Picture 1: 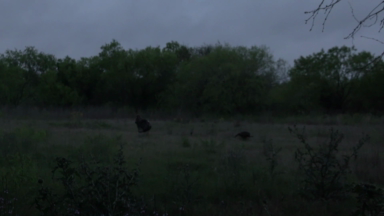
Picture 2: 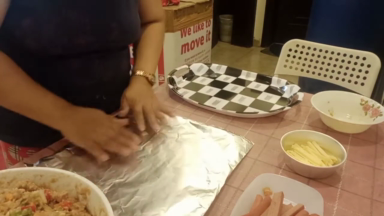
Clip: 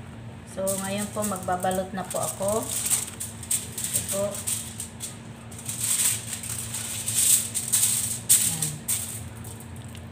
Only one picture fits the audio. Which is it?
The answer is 2